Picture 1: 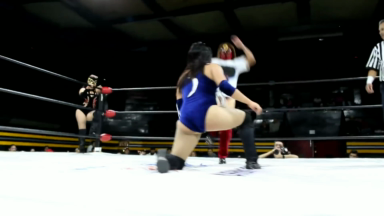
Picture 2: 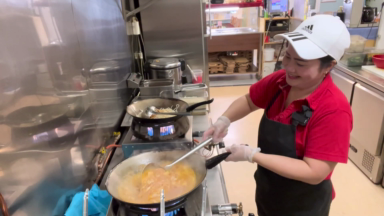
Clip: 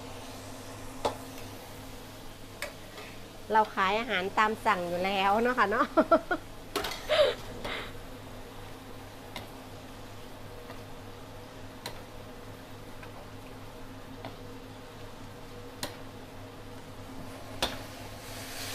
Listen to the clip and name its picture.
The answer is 2